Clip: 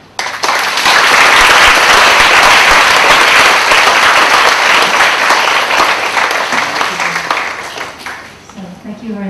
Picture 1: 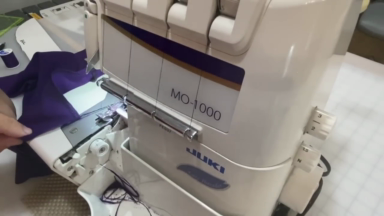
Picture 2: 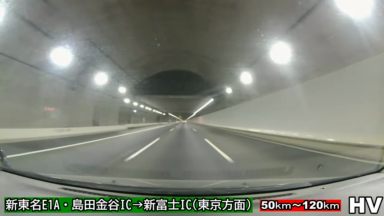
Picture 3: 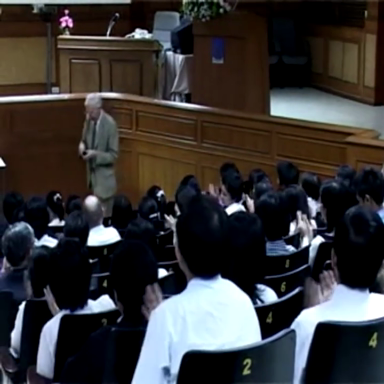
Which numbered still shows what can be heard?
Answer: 3